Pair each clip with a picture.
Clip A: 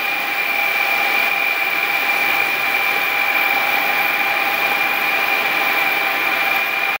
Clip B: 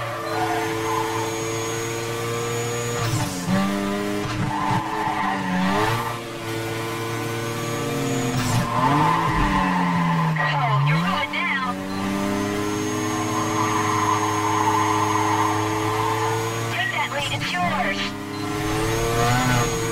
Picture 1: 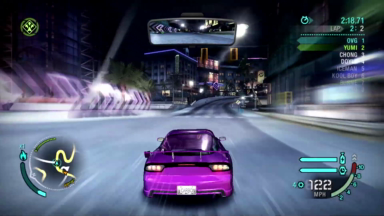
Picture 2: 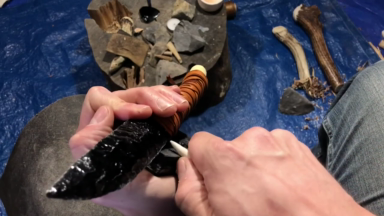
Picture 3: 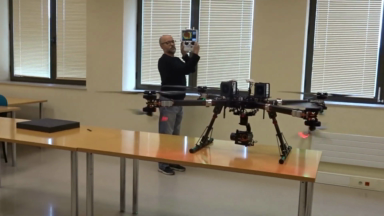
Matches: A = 3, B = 1